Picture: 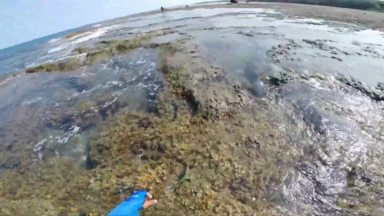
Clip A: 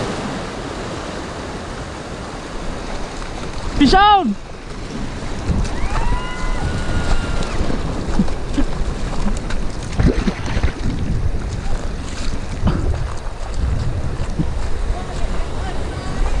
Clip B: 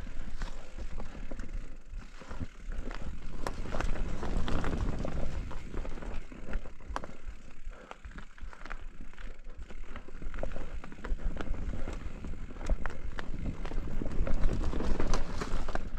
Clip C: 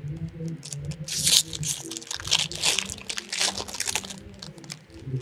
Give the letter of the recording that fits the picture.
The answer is A